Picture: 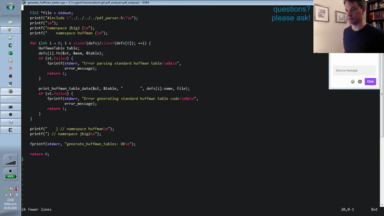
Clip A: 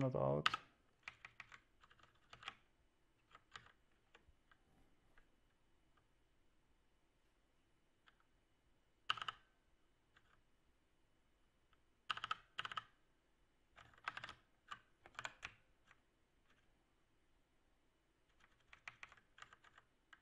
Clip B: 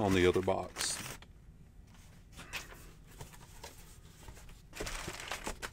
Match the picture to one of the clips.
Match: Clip A